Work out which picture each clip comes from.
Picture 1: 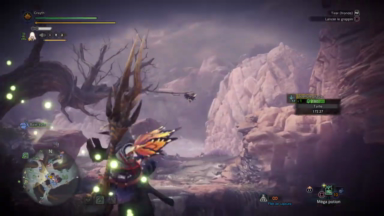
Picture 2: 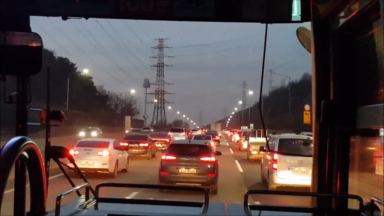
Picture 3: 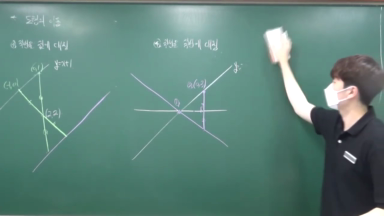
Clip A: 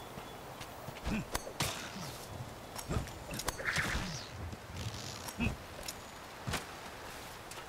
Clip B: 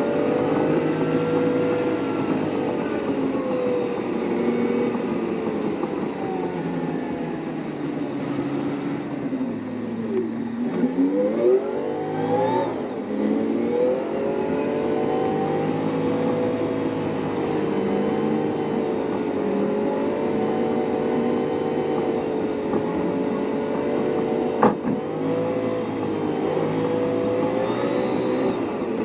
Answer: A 1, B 2